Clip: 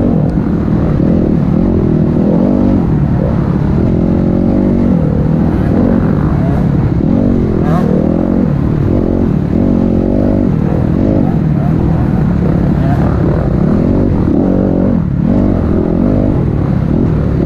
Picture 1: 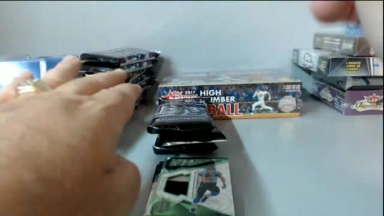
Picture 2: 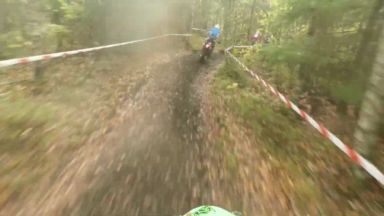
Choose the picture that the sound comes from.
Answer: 2